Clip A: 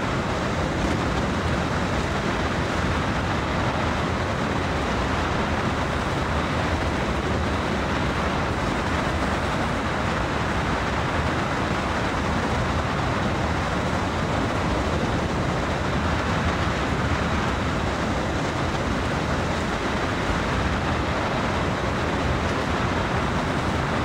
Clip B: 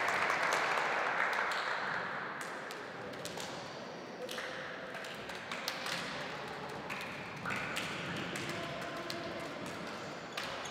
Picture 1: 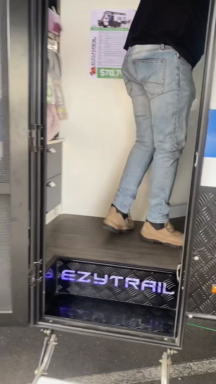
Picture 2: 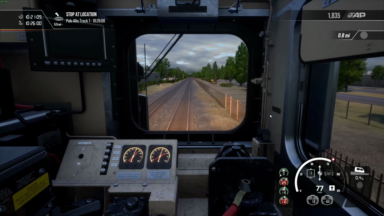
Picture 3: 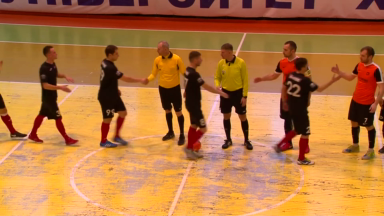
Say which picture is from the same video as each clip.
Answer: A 2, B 3